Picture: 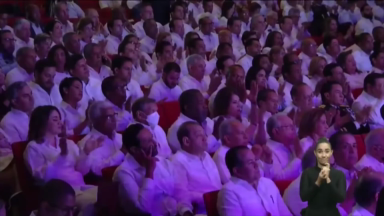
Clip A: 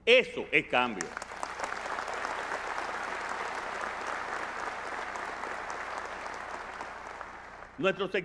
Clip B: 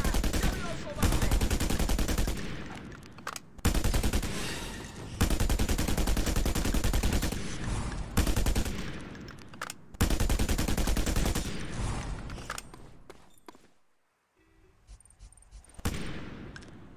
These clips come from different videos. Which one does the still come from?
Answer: A